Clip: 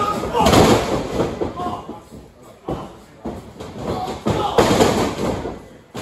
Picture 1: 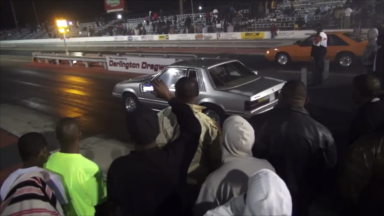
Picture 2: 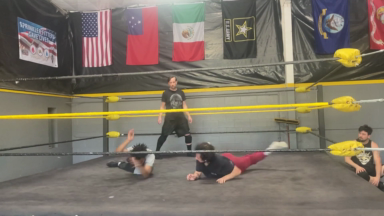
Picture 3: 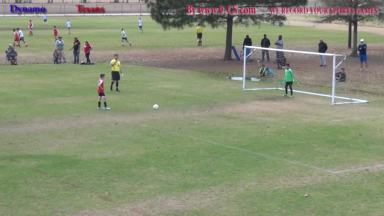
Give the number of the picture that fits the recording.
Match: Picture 2